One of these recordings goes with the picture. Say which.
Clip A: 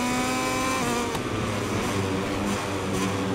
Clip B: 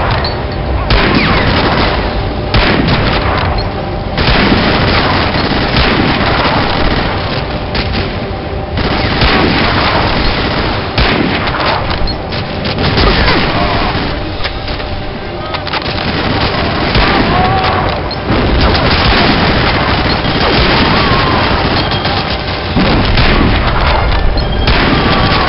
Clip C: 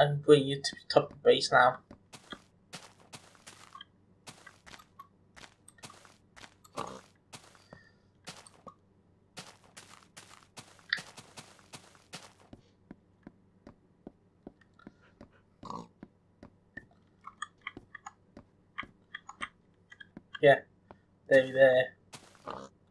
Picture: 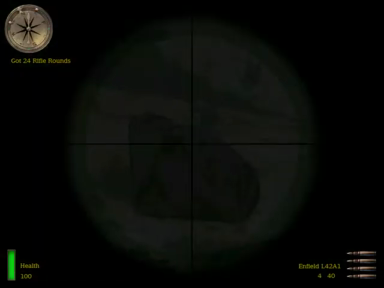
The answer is B